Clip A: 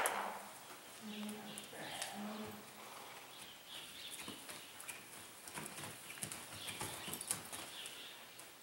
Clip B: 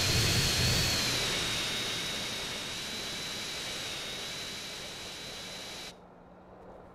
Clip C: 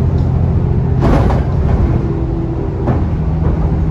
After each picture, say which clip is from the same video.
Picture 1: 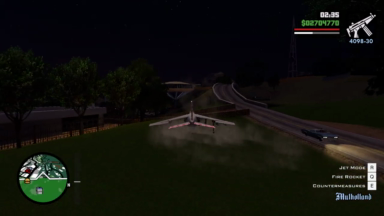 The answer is B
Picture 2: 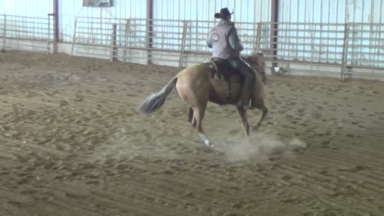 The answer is A